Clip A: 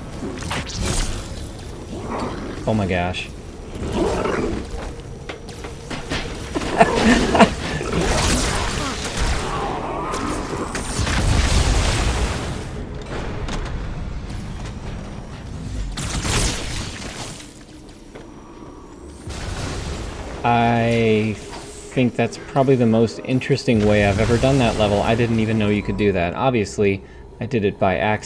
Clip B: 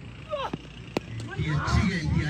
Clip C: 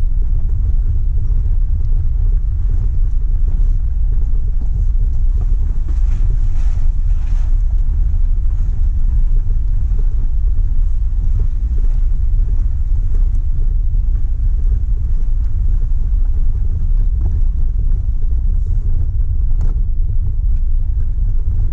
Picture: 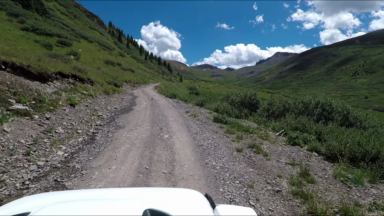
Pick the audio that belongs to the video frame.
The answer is C